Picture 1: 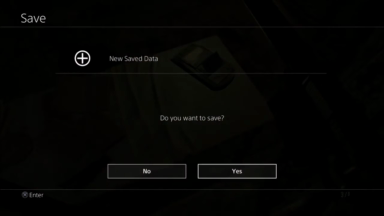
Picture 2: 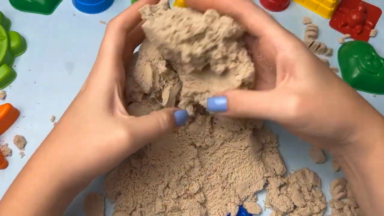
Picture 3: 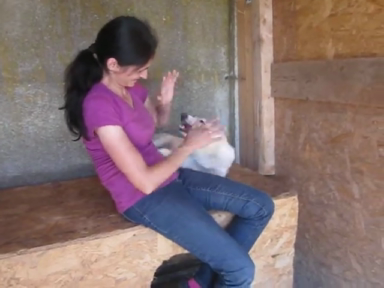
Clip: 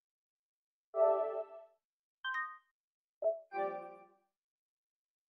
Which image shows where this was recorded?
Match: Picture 1